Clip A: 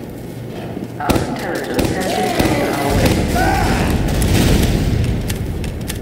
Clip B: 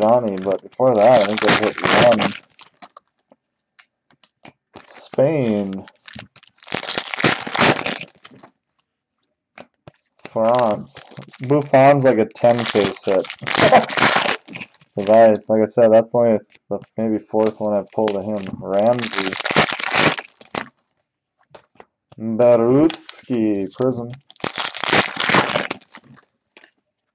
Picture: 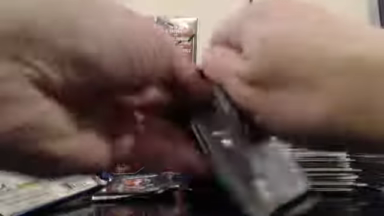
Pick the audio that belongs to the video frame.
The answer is B